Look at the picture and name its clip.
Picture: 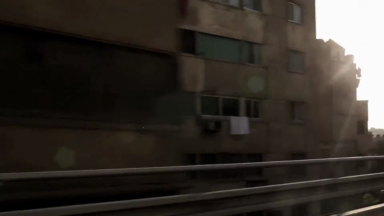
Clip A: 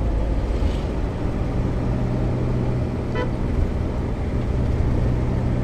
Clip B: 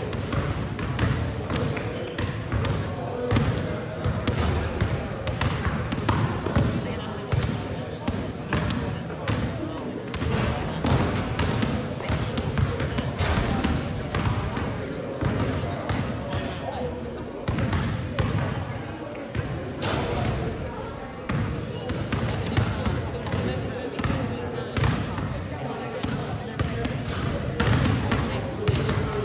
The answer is A